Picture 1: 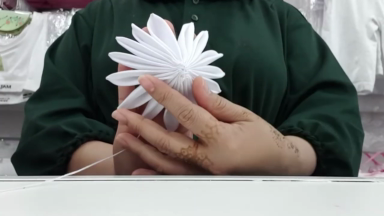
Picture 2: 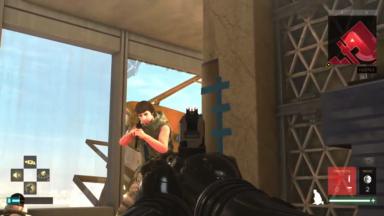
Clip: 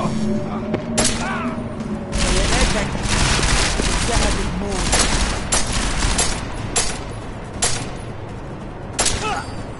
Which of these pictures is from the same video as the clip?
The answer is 2